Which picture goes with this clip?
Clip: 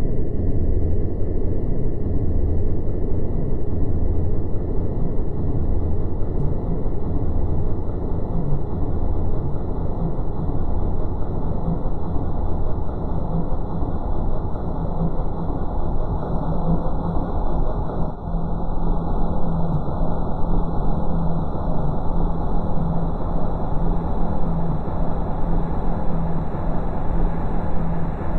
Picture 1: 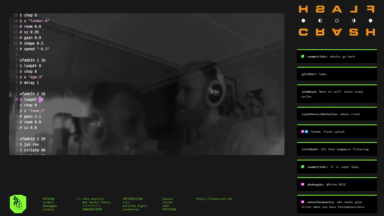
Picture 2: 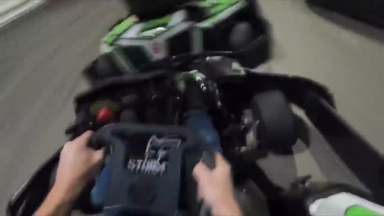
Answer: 1